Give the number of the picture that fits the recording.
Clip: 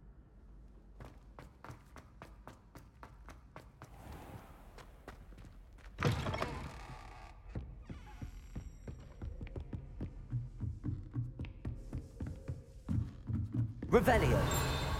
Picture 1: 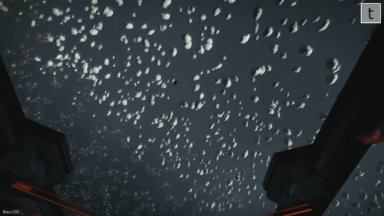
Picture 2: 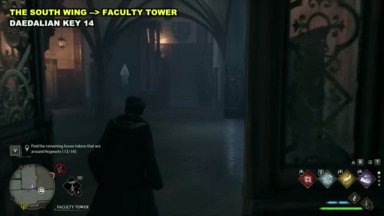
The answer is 2